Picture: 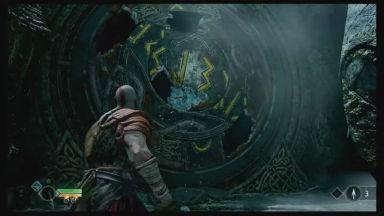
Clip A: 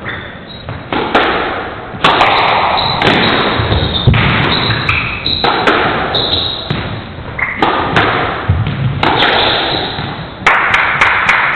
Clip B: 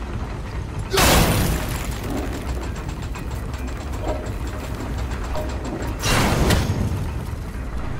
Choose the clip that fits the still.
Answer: B